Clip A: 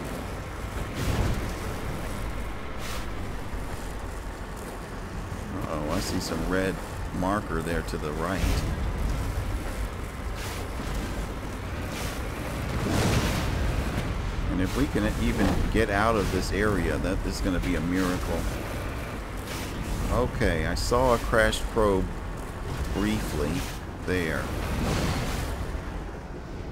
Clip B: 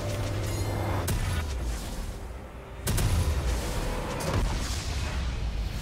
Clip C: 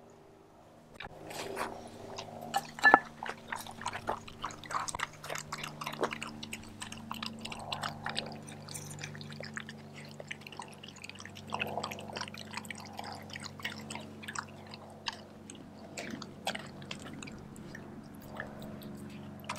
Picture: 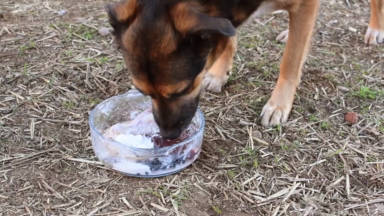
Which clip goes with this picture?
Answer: C